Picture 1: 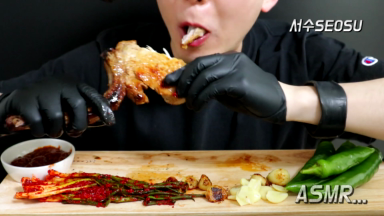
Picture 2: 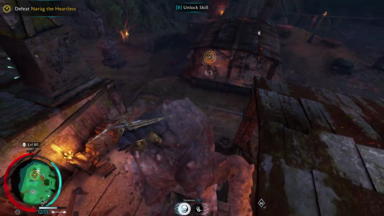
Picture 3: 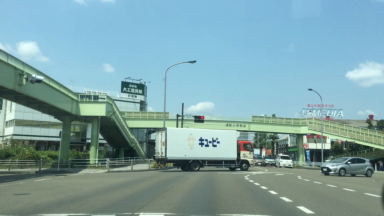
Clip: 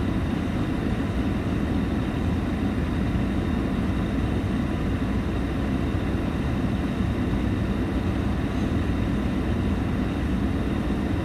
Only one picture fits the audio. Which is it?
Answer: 3